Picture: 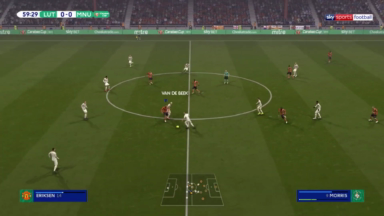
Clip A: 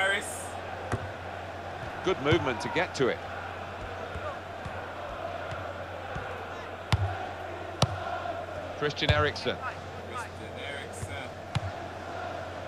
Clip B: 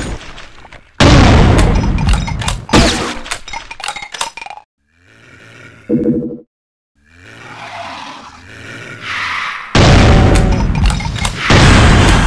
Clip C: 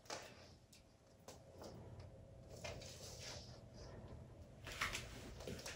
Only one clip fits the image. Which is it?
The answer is A